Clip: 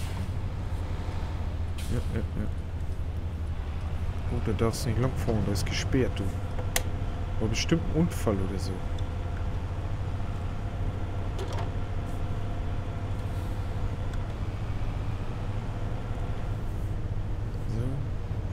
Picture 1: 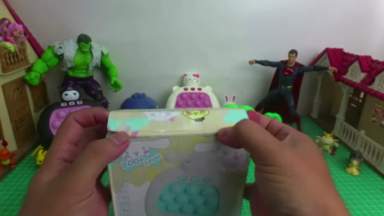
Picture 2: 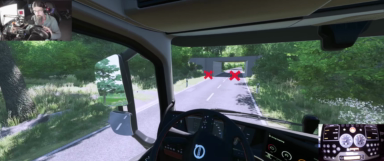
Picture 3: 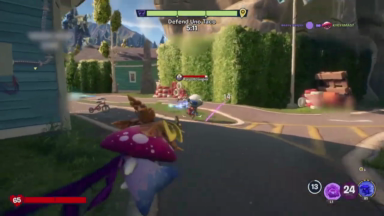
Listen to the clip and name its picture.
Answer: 2